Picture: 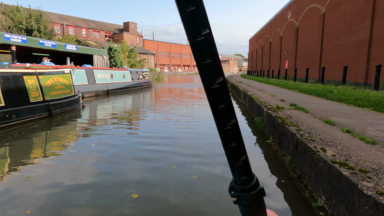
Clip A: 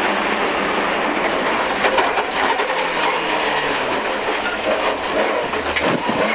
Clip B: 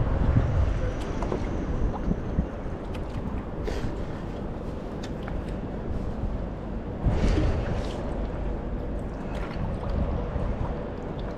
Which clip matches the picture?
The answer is B